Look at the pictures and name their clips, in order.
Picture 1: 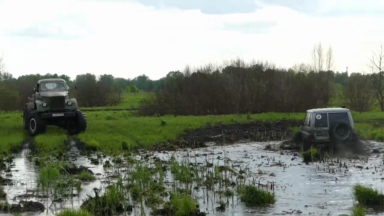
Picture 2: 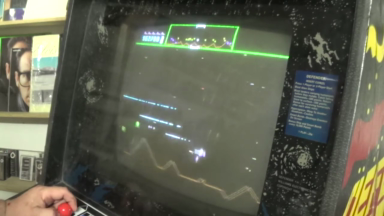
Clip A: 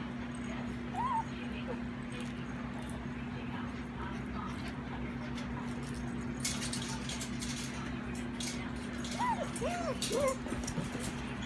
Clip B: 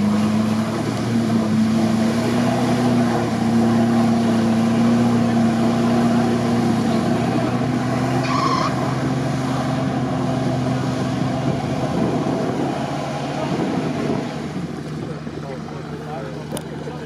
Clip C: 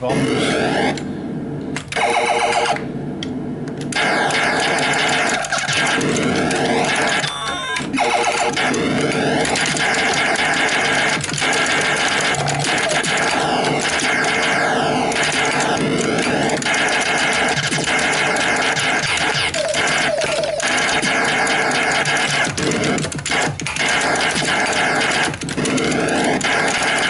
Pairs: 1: B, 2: C